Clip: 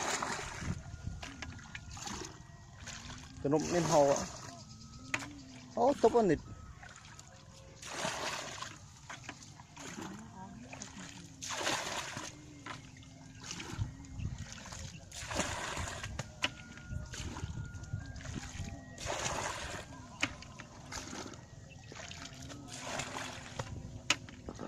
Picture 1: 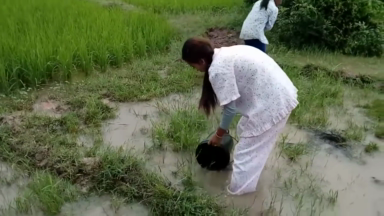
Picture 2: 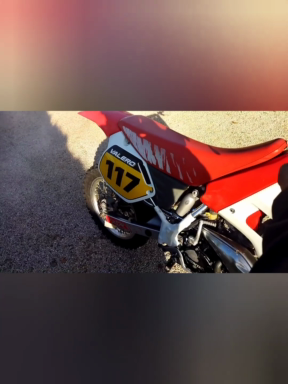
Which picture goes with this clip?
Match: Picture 1